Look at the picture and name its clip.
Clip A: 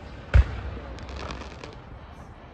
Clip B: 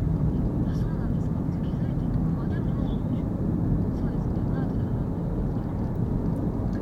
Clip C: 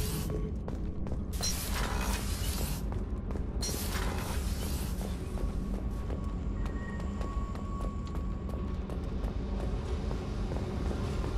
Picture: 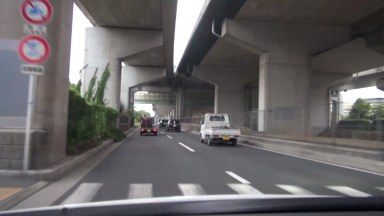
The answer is B